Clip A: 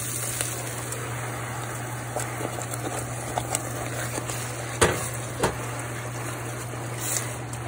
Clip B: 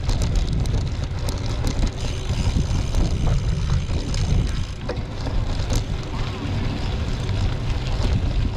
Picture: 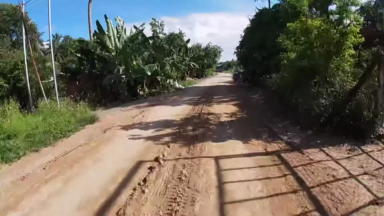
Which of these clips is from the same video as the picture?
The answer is B